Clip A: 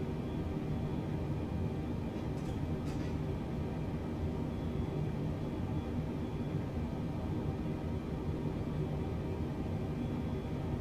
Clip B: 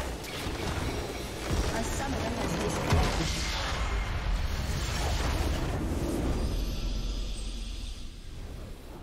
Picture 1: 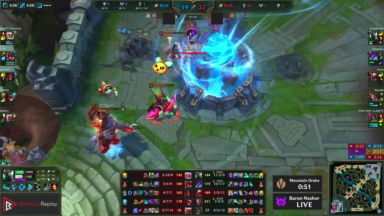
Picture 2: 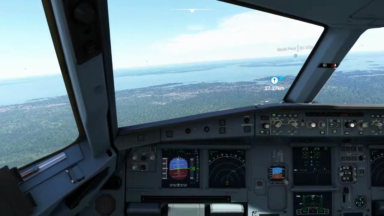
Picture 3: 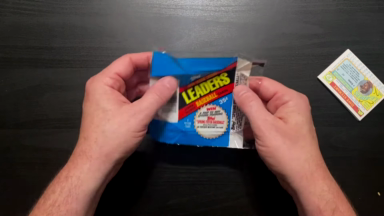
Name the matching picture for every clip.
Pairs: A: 2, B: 1